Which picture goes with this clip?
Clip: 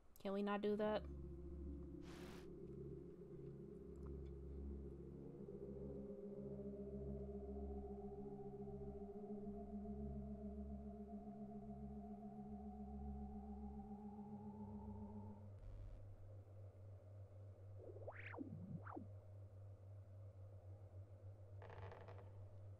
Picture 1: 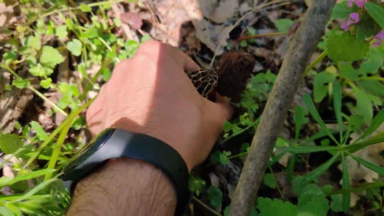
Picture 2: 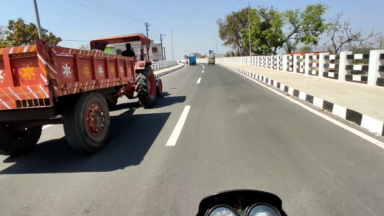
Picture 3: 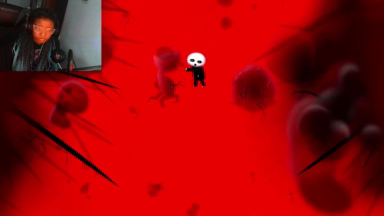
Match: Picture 3